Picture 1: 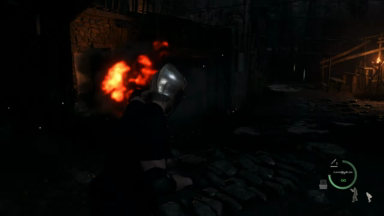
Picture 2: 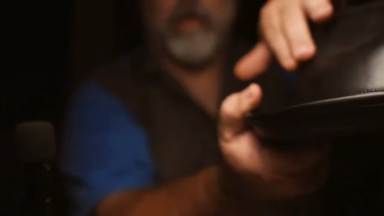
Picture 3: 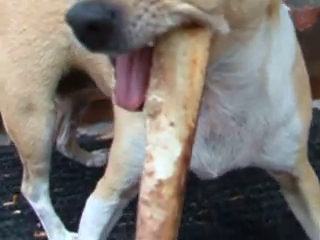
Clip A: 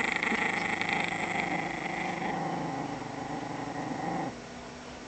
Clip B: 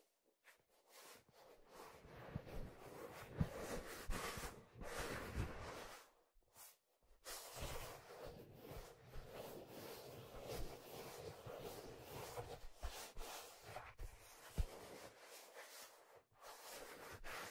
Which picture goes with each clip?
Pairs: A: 3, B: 2